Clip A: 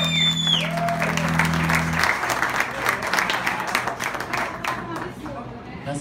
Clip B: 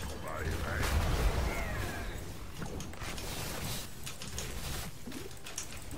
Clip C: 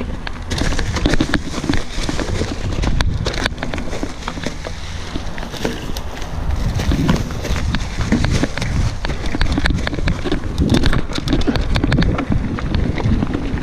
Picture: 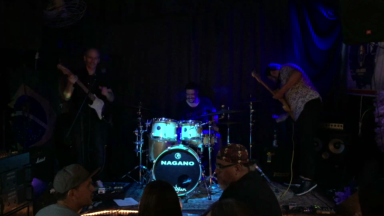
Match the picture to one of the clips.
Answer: A